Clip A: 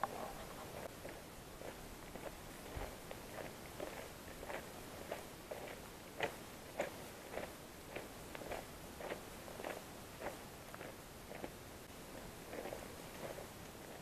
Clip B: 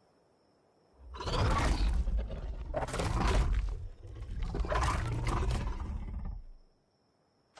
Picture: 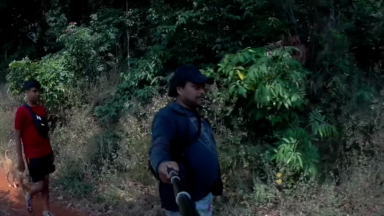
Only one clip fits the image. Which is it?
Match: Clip A